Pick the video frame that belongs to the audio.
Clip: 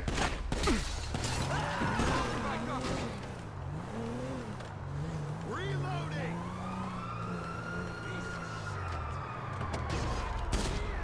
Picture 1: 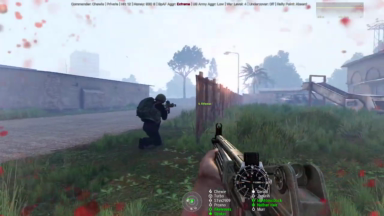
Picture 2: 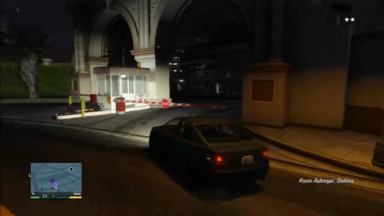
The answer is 2